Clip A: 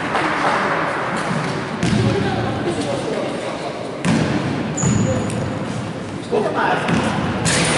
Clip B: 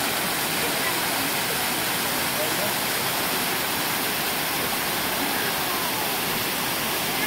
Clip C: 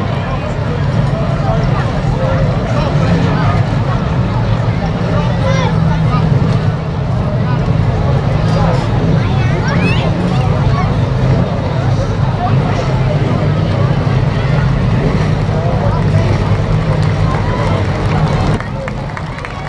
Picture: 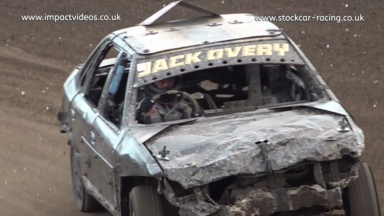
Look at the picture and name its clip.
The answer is C